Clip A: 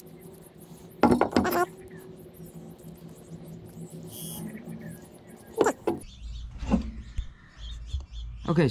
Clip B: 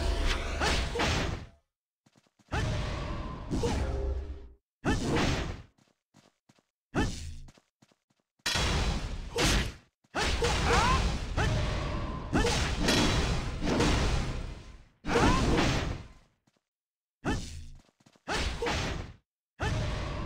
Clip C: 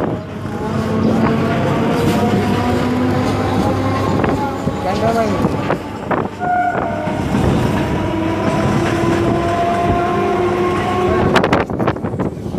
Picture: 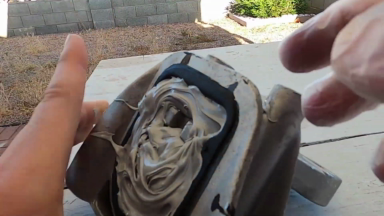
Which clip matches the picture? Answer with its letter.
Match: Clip A